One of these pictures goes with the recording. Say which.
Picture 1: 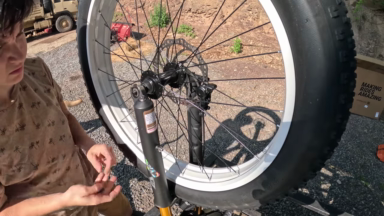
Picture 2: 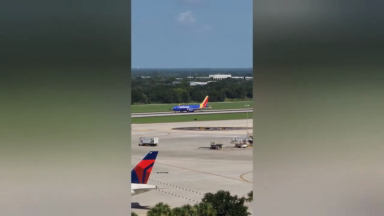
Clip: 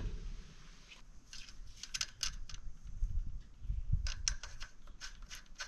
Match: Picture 1